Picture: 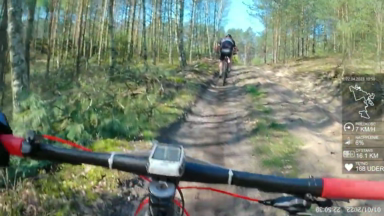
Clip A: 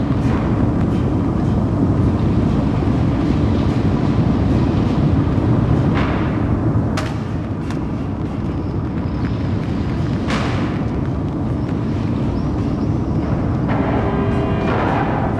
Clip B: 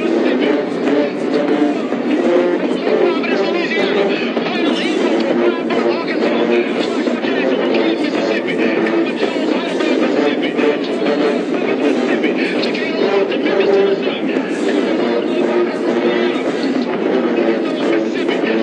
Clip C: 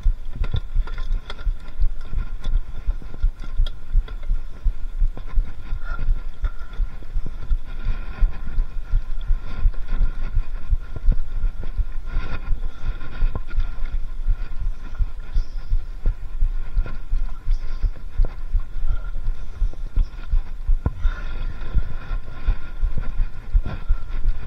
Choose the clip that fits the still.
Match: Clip C